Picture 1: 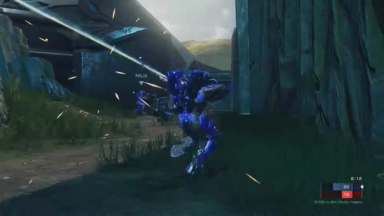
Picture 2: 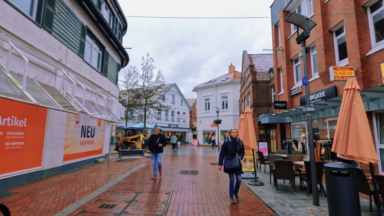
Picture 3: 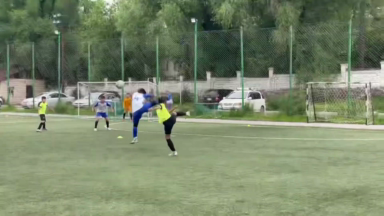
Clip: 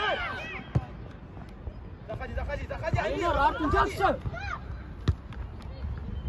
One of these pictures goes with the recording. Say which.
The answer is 3